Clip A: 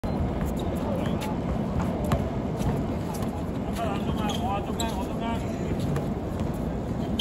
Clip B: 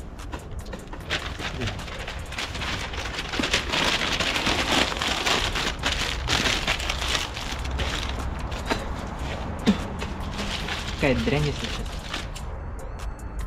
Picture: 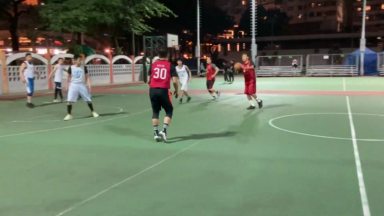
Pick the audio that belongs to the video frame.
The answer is A